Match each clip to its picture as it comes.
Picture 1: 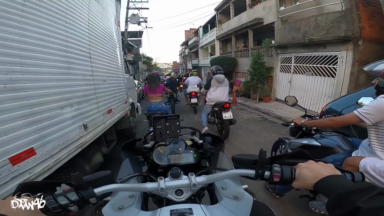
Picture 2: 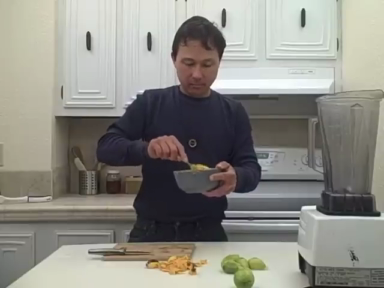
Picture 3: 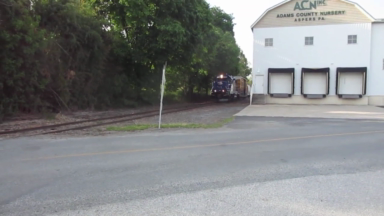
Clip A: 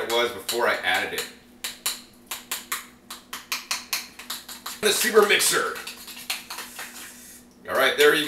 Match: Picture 2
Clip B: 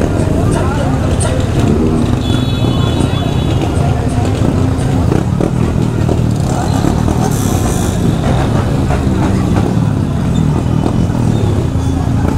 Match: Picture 1